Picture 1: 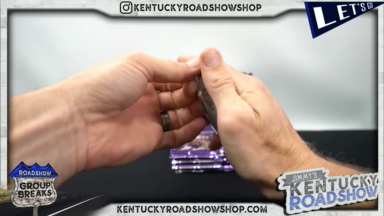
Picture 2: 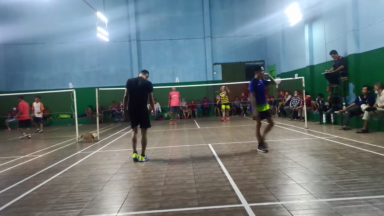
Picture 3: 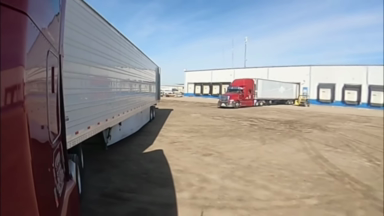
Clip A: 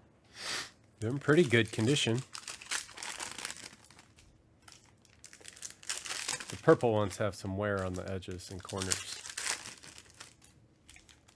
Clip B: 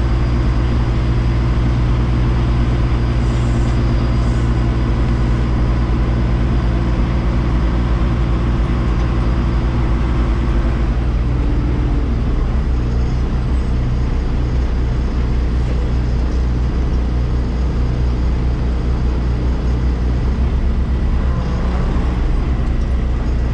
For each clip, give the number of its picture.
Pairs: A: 1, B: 3